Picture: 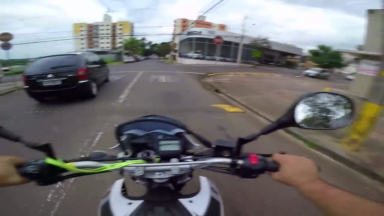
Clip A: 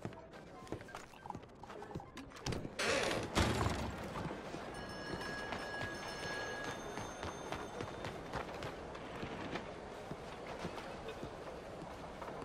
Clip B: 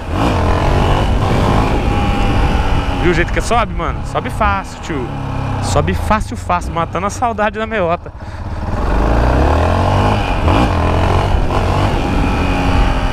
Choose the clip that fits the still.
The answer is B